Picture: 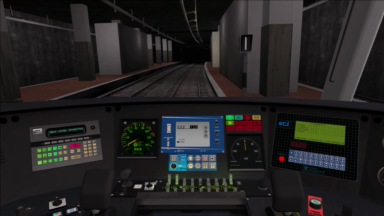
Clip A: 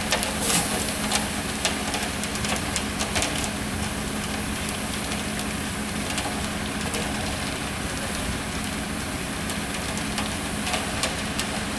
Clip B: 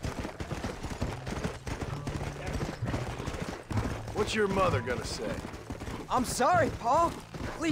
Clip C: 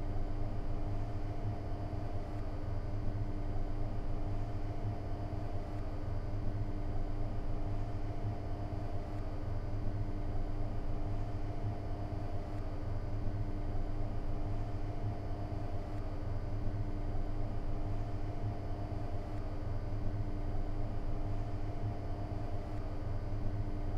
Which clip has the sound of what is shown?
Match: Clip C